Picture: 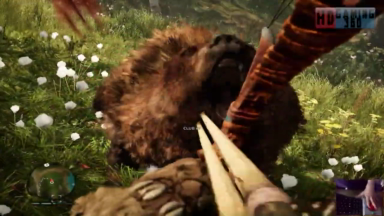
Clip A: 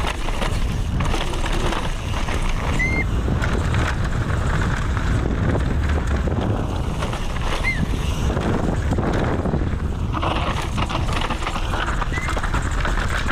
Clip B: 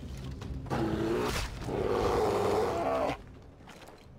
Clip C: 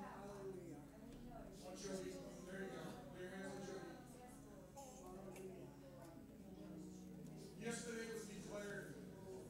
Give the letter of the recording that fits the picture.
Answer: B